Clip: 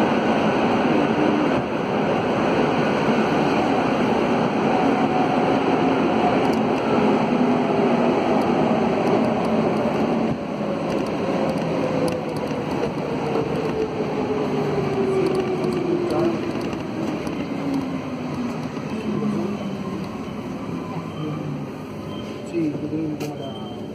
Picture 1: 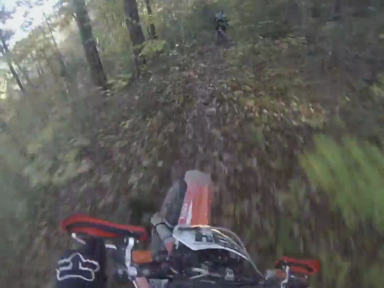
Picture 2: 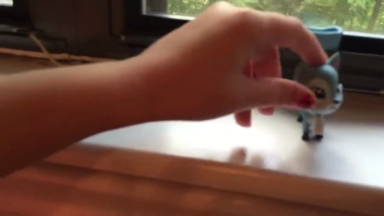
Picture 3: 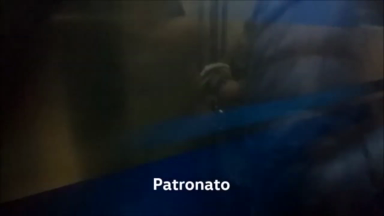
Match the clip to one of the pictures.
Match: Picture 3